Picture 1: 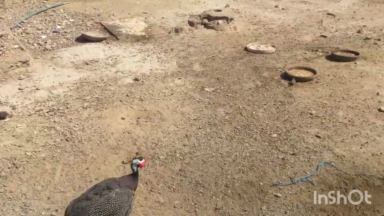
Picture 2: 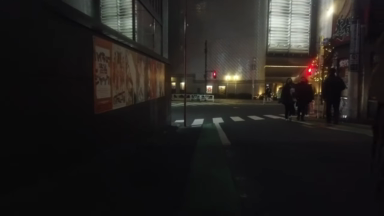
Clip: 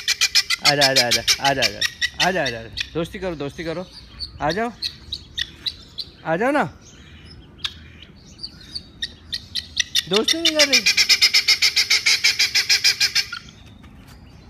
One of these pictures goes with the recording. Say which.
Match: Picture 1